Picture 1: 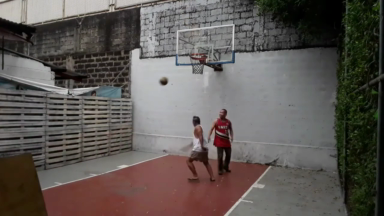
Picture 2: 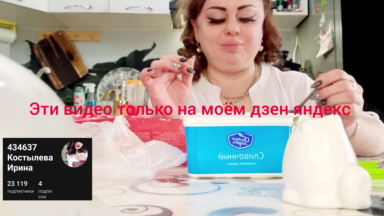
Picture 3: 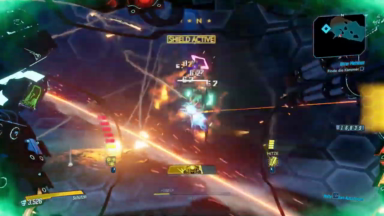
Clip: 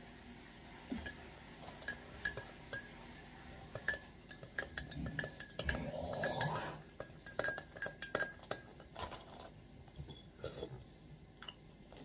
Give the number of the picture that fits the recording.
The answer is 2